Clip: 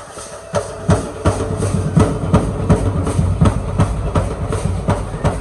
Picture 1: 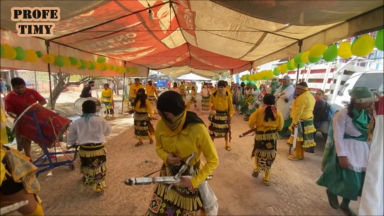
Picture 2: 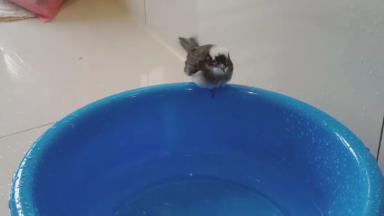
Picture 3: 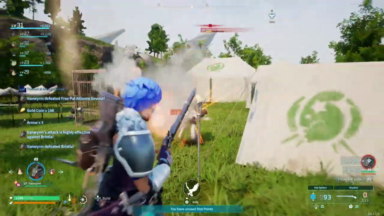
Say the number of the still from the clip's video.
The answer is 1